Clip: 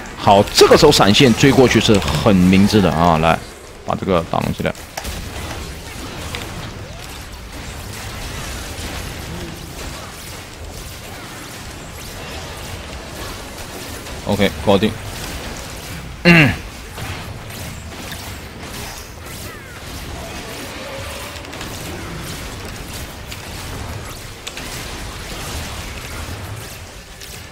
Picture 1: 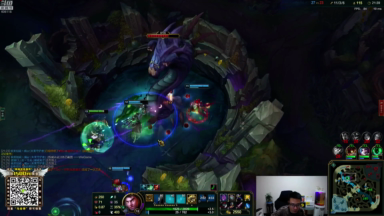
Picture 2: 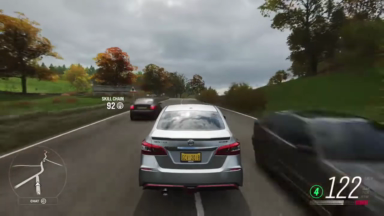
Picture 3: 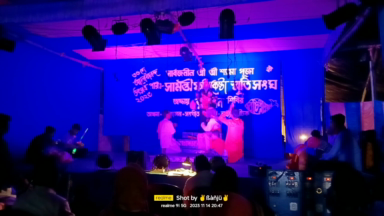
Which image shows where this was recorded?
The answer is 1